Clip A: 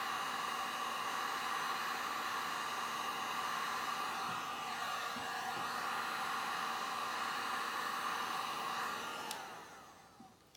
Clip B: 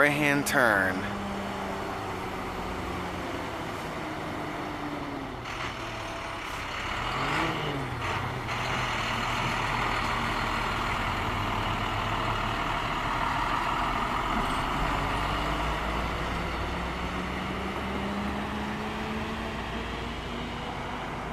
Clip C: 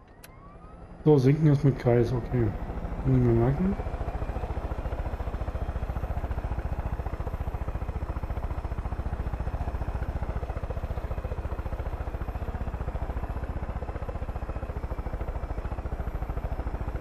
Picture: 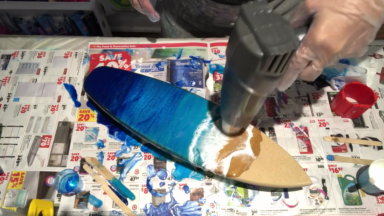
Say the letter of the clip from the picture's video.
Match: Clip A